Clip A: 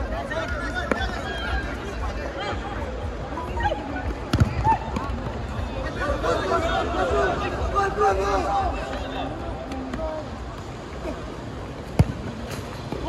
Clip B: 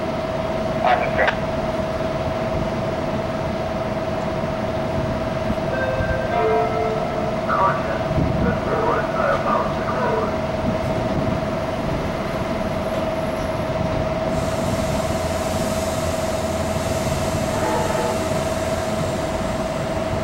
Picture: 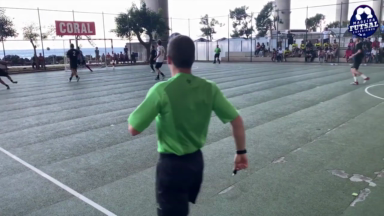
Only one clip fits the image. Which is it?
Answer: A